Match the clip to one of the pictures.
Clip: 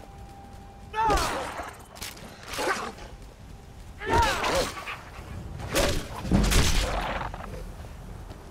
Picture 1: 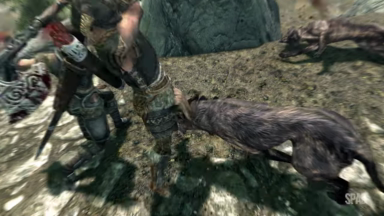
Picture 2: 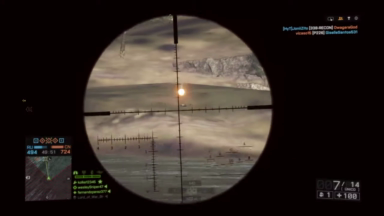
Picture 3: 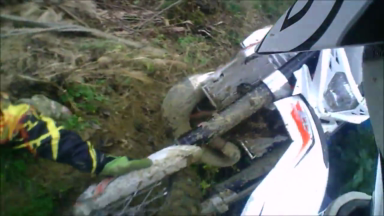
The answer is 1